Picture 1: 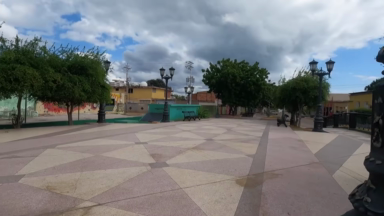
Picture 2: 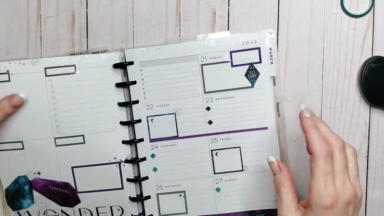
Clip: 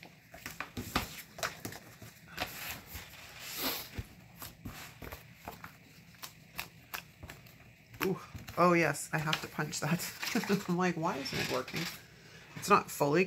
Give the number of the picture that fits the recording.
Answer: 2